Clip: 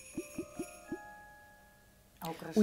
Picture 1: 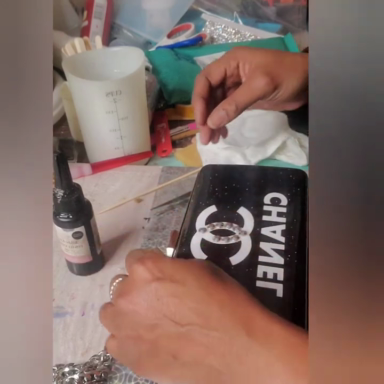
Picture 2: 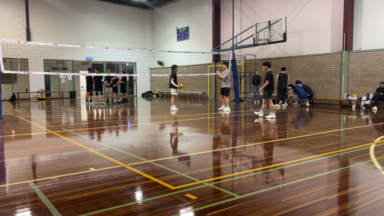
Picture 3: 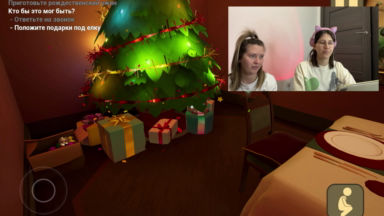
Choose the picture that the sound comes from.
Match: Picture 3